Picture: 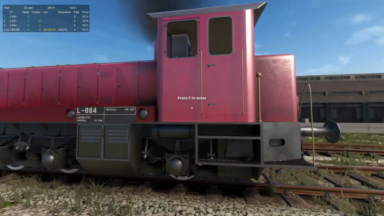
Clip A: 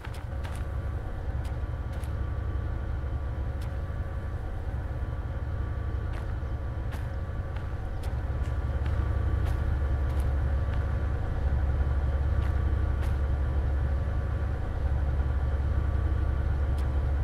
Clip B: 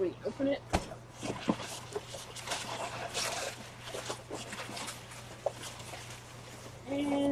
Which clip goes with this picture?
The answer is A